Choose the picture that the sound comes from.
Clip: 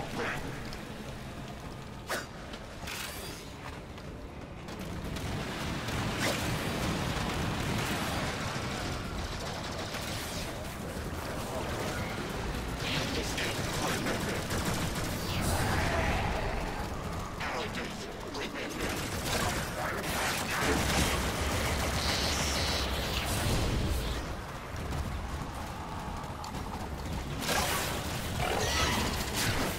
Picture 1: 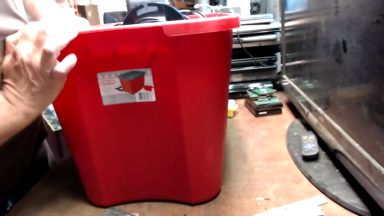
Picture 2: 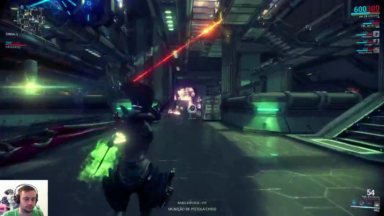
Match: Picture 2